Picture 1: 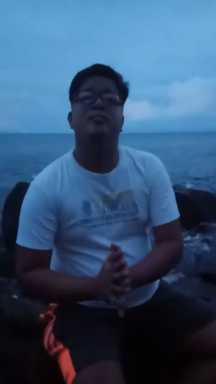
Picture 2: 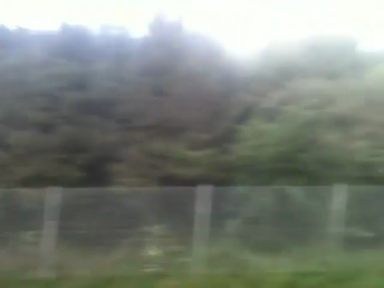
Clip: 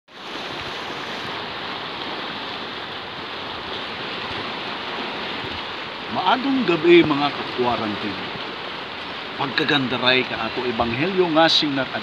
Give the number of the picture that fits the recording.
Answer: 1